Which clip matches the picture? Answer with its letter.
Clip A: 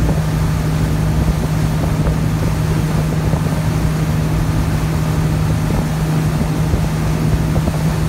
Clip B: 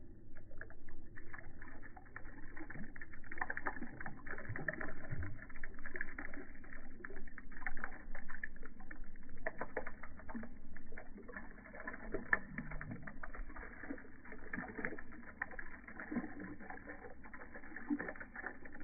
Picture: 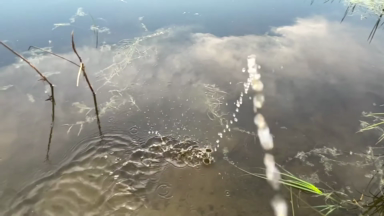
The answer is B